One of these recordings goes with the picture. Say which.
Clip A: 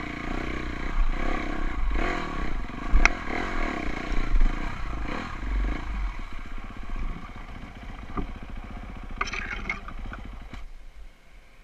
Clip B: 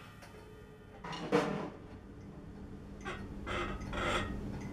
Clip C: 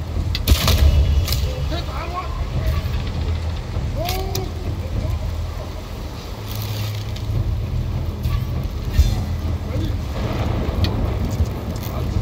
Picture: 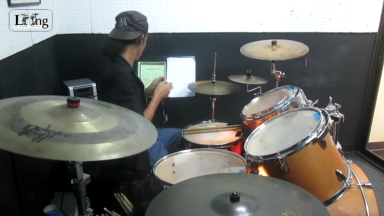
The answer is B